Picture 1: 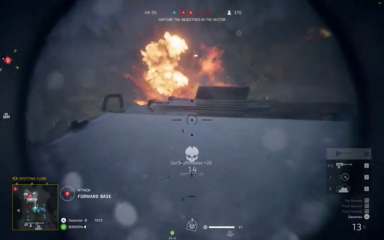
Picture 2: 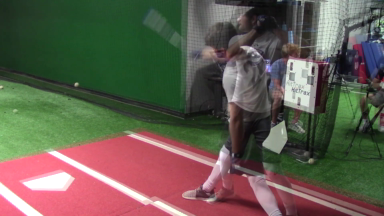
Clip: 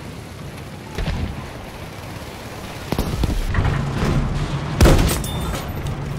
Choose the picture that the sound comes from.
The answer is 1